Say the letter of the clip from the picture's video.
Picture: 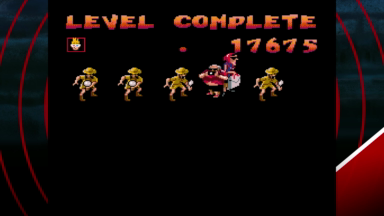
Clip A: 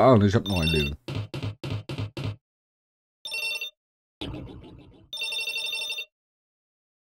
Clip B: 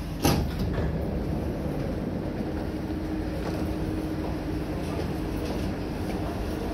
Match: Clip A